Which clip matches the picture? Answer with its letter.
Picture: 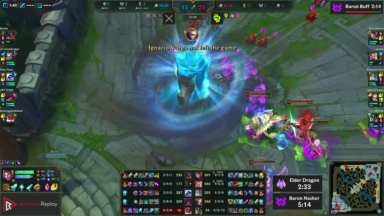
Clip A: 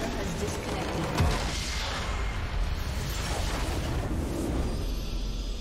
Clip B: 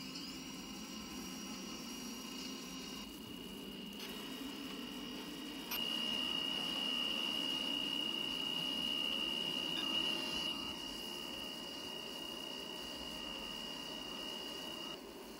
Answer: A